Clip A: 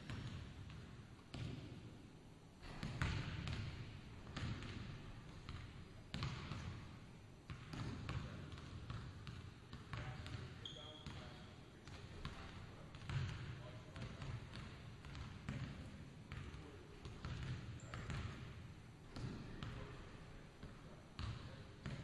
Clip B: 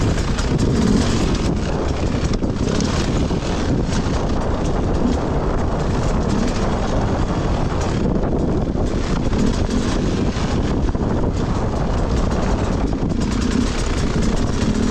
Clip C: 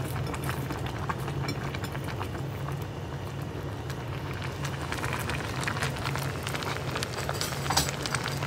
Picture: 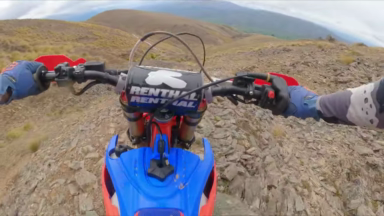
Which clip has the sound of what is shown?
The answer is B